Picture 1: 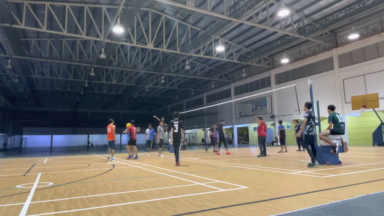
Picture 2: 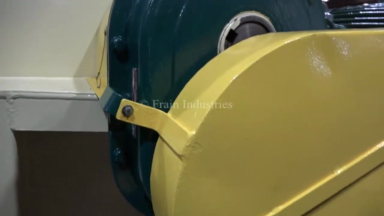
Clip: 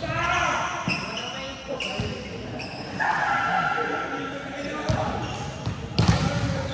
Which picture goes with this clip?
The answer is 1